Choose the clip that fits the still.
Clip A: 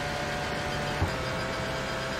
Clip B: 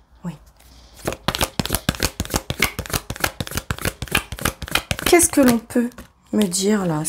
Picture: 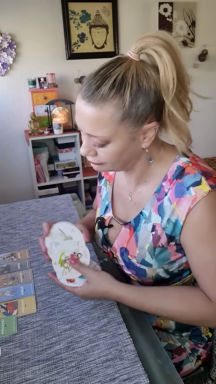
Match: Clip B